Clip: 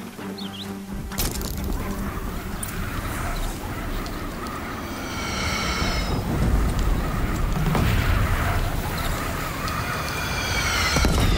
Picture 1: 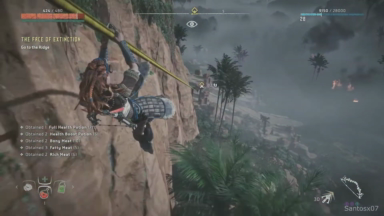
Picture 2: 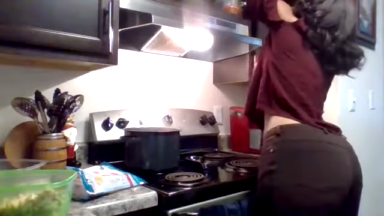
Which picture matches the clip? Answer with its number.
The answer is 1